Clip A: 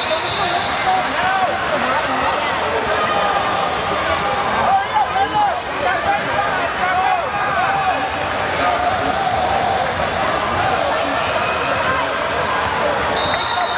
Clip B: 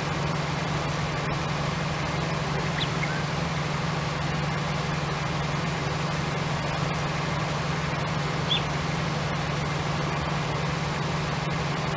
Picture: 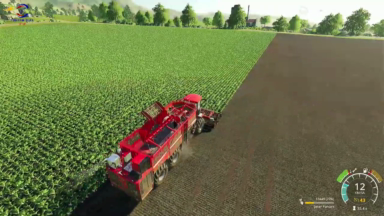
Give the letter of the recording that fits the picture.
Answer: B